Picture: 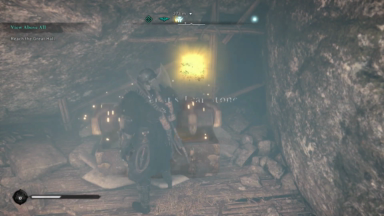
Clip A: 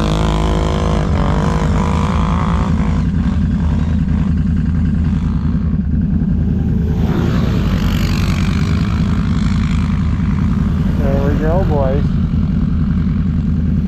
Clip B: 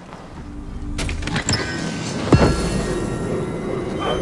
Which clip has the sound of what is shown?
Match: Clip B